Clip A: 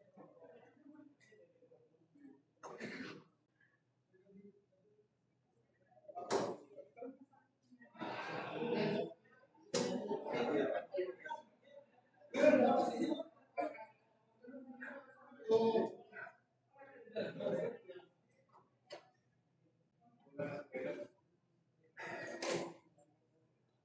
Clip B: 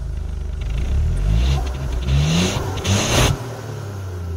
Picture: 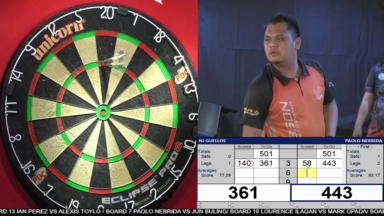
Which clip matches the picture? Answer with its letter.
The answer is A